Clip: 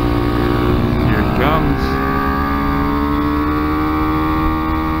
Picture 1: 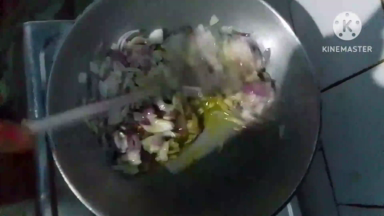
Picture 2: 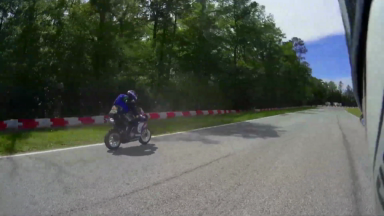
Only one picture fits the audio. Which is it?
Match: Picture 2